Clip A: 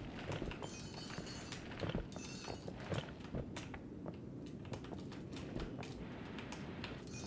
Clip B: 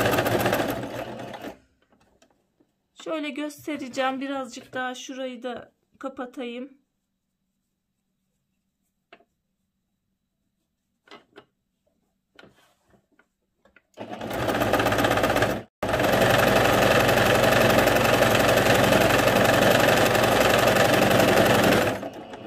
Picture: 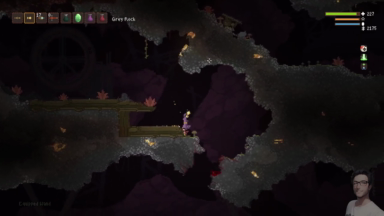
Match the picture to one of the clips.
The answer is A